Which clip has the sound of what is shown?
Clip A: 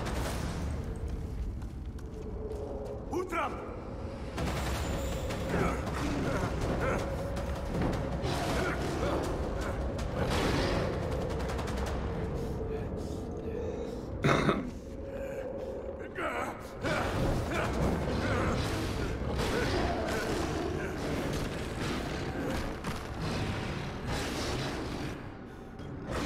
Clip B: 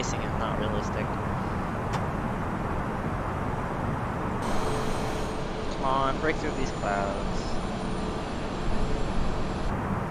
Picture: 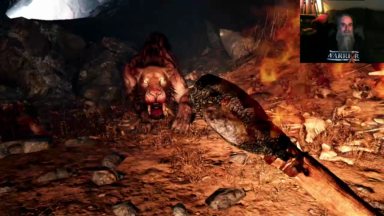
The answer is A